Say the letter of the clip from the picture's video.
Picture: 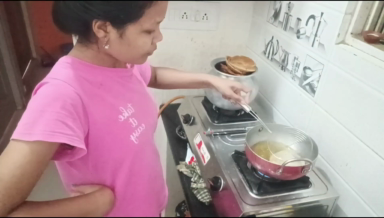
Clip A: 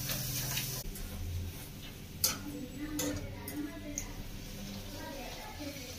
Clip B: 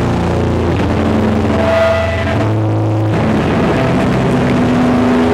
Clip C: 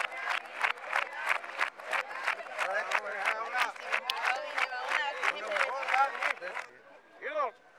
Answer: A